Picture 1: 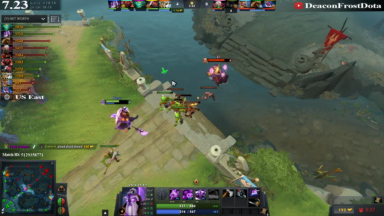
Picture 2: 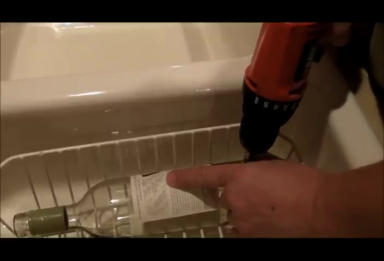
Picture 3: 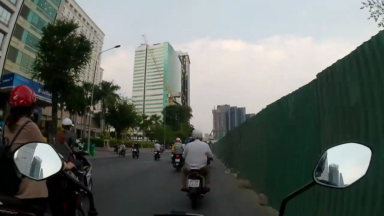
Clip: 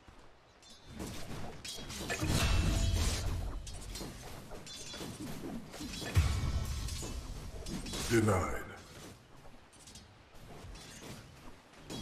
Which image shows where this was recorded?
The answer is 1